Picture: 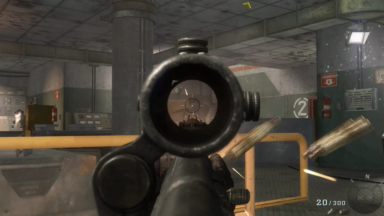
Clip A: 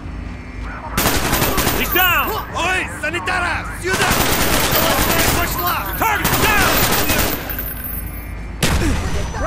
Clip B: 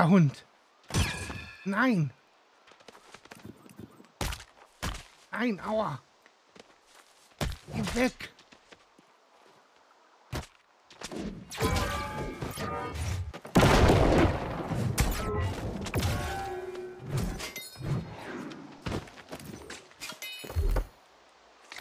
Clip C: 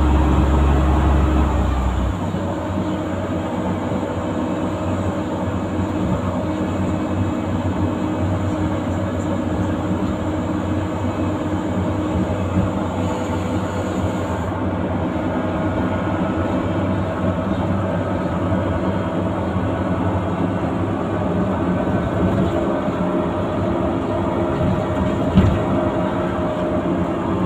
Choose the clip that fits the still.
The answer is A